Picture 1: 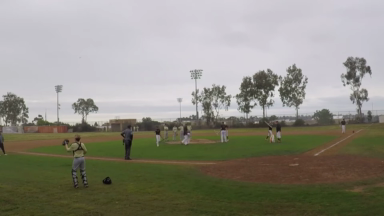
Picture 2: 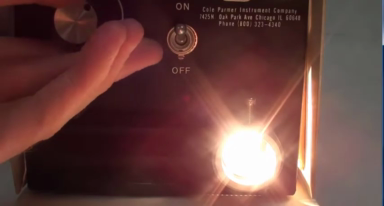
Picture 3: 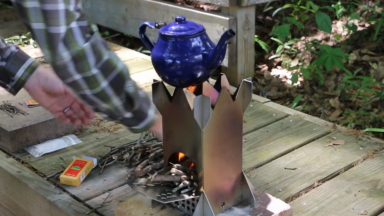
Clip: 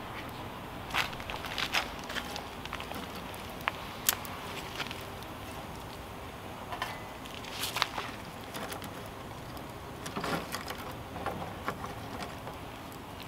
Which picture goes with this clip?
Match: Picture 3